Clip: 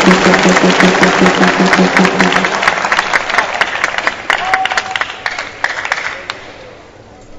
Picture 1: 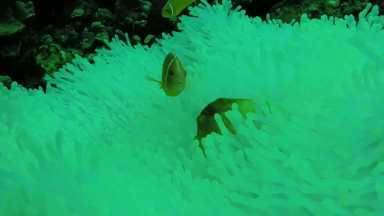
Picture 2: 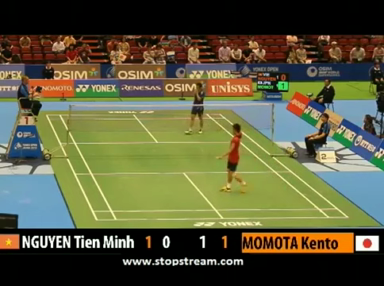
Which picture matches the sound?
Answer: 2